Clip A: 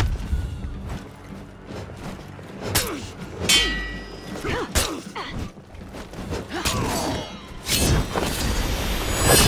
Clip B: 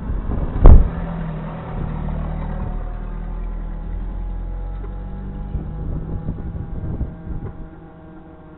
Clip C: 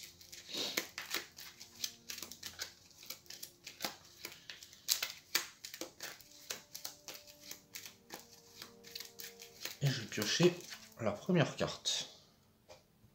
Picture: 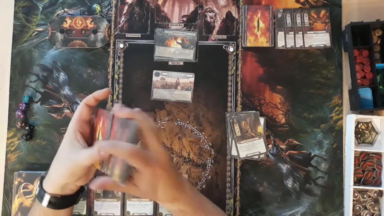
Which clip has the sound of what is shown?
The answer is C